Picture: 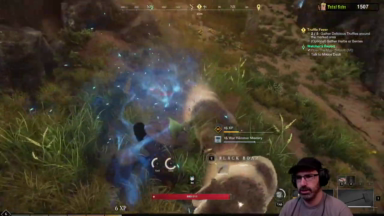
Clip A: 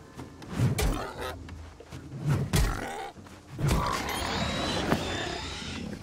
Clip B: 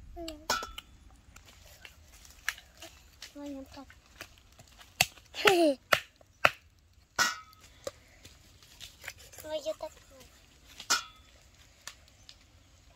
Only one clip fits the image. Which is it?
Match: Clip A